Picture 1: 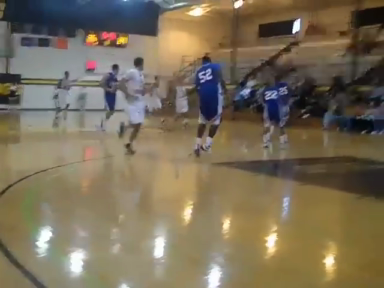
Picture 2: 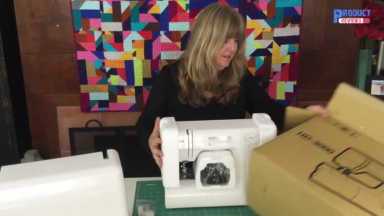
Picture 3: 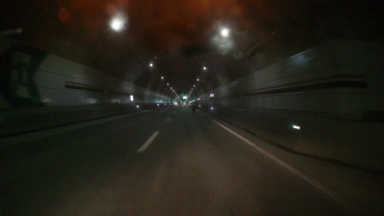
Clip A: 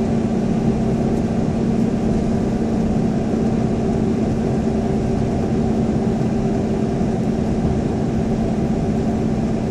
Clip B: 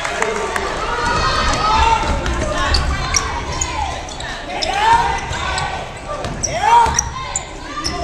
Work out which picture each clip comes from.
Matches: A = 3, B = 1